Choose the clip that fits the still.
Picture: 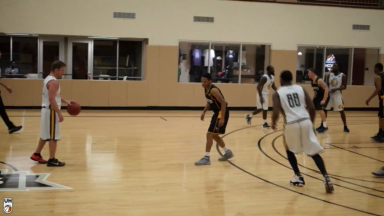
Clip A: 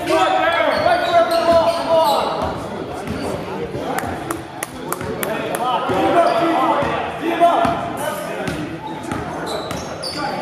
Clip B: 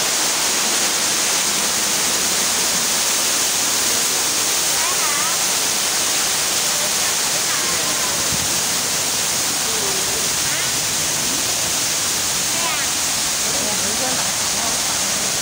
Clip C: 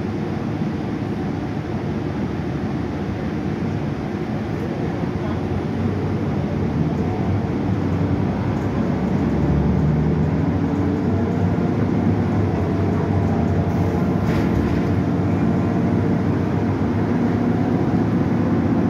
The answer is A